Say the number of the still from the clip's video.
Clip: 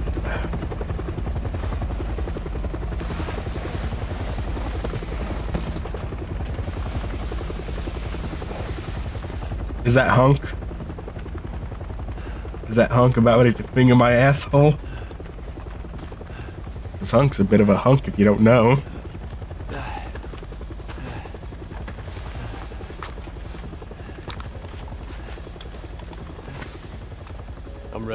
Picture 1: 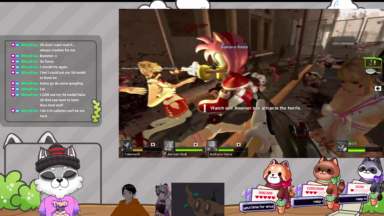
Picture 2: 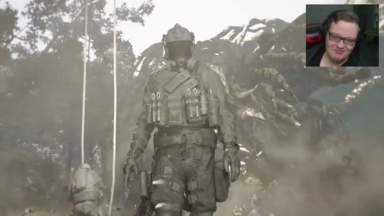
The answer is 2